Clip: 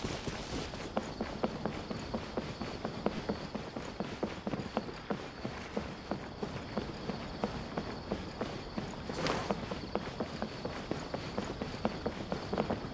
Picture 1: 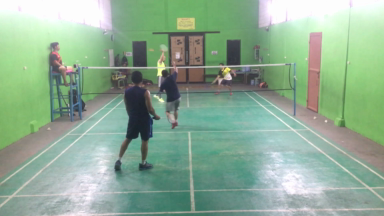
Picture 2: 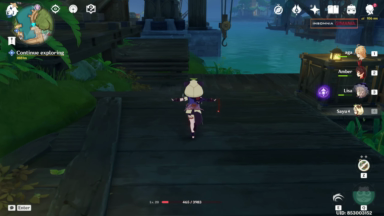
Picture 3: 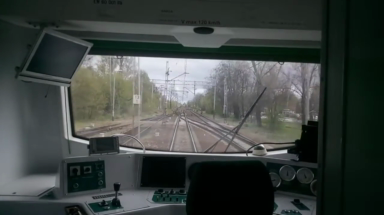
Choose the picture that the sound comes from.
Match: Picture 2